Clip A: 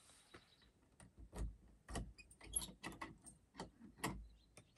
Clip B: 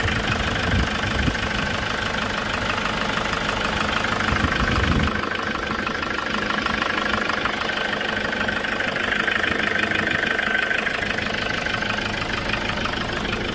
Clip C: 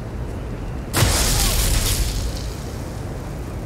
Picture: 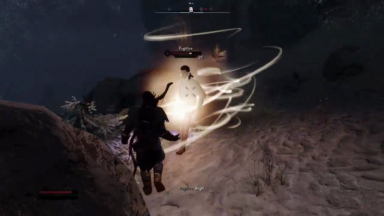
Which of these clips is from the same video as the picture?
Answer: C